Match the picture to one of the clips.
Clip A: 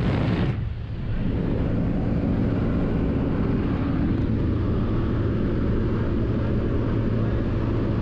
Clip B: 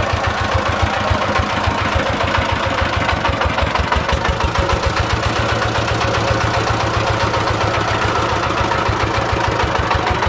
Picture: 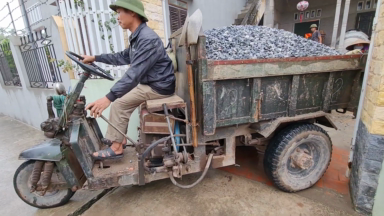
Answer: B